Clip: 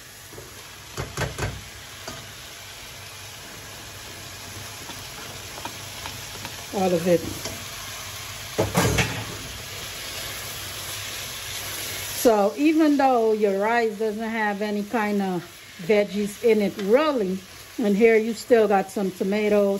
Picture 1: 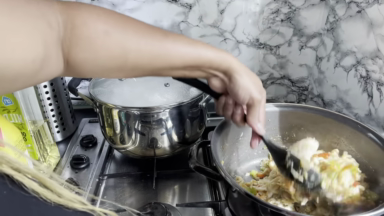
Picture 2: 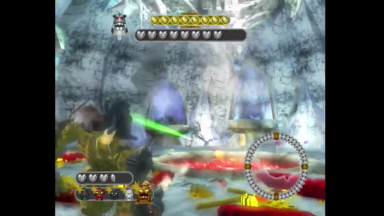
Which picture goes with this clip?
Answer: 1